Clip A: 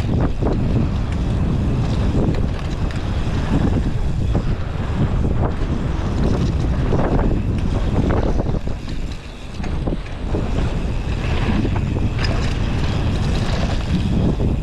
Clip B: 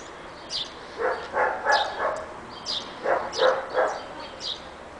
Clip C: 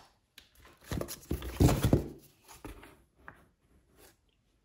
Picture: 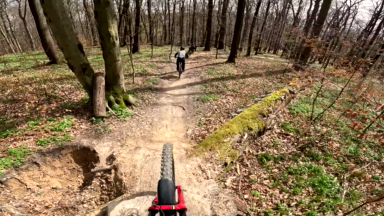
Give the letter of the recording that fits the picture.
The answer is A